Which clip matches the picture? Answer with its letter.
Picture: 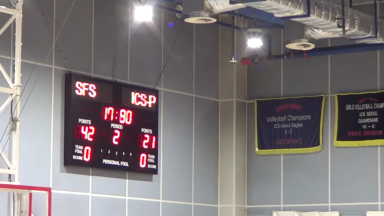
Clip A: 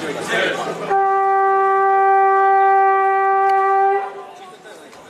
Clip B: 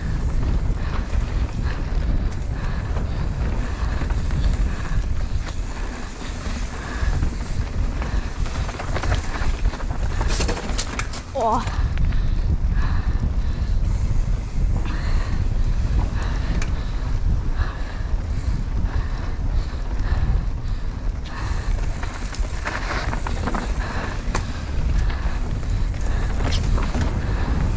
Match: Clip A